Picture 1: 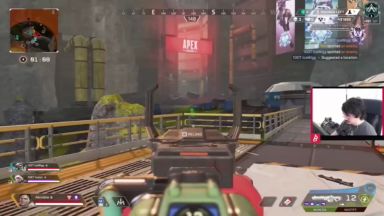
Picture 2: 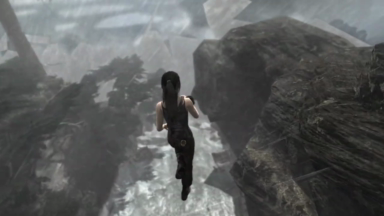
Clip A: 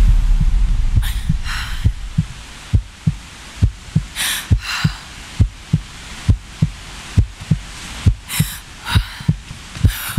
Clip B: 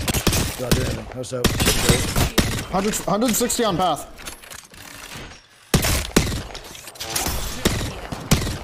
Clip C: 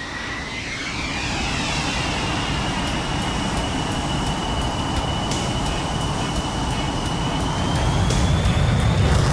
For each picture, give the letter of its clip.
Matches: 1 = B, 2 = A